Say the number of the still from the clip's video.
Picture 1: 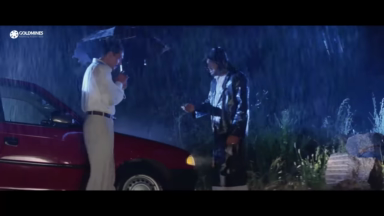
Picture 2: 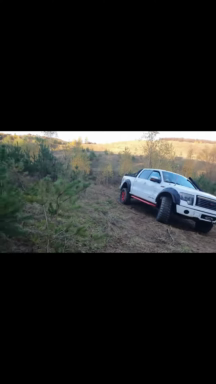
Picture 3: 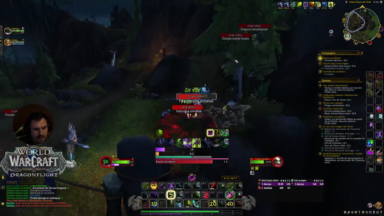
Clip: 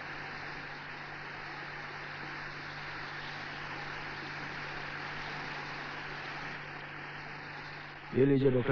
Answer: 1